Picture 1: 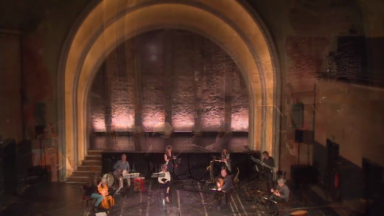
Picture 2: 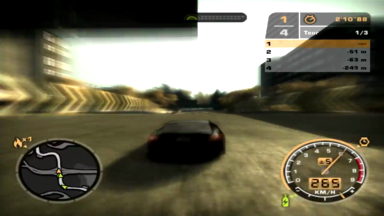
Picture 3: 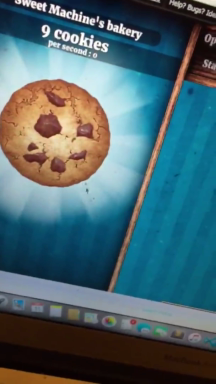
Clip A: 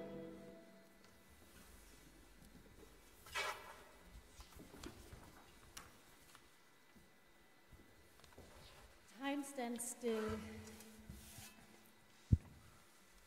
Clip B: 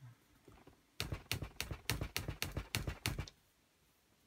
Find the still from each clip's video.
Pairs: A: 1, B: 3